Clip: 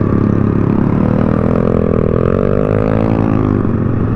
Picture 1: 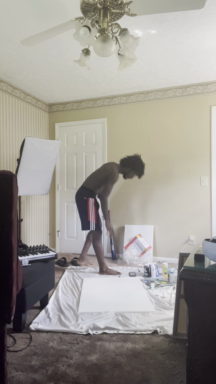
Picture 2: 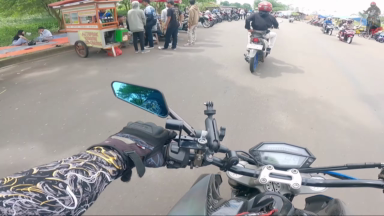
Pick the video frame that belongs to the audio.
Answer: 2